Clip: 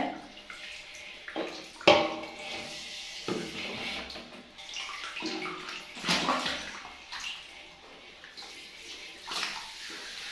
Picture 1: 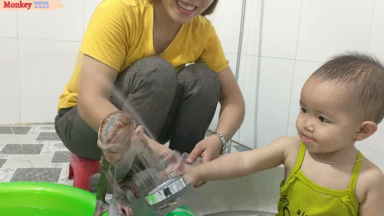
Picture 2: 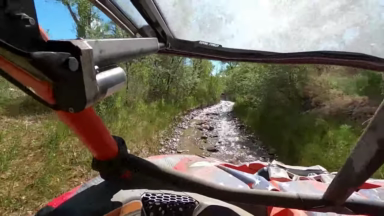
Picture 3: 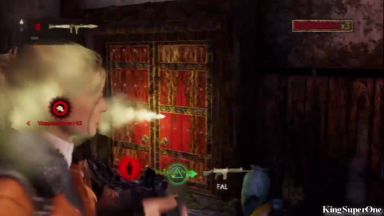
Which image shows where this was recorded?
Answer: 1